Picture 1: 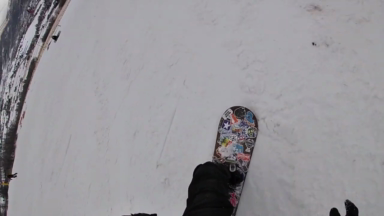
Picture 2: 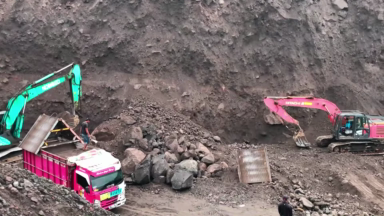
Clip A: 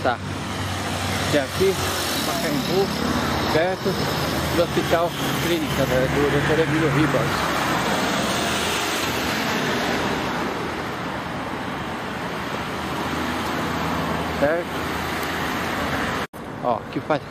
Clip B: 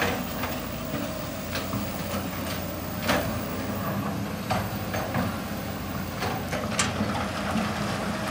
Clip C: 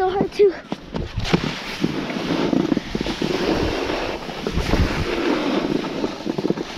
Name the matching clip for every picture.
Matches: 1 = C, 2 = B